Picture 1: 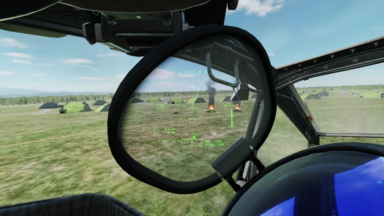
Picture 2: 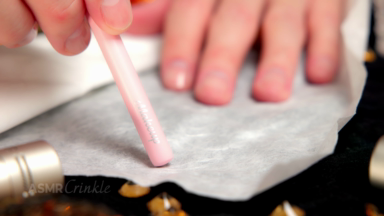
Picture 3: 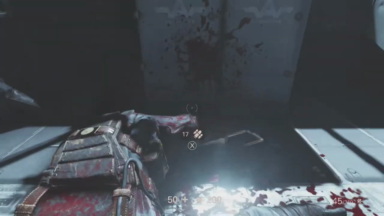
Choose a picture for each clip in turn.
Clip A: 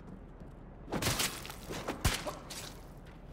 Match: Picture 3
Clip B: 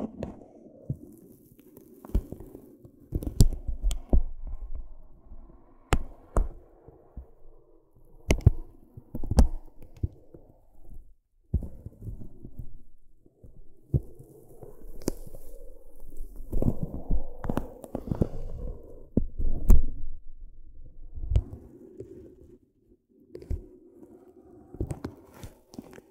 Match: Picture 2